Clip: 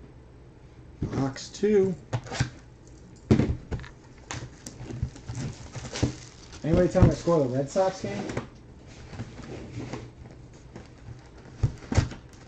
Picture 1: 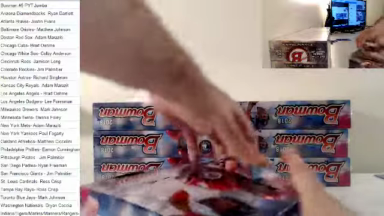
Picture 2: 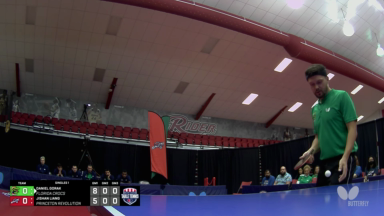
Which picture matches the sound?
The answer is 1